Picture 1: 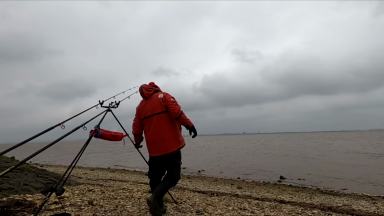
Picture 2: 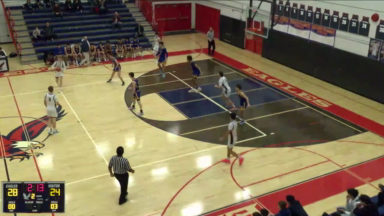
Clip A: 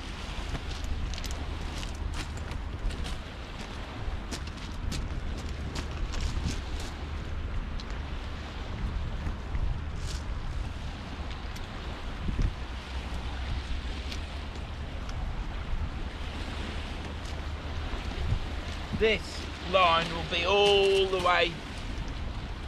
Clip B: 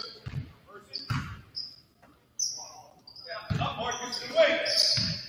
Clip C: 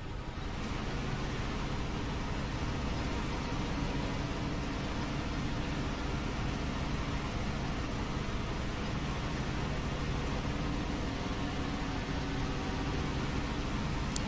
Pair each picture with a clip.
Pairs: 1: A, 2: B